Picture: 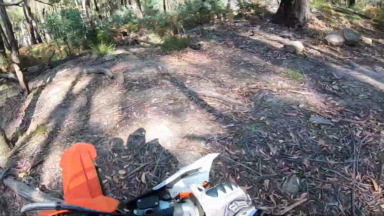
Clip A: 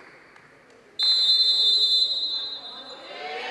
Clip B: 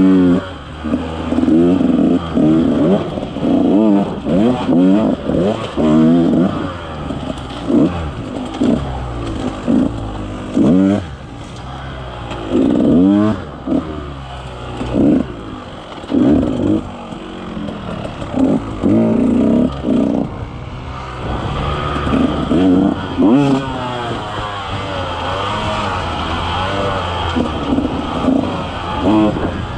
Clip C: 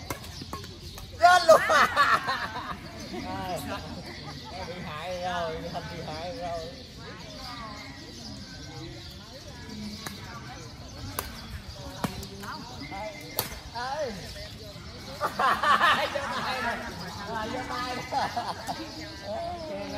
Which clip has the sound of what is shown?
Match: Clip B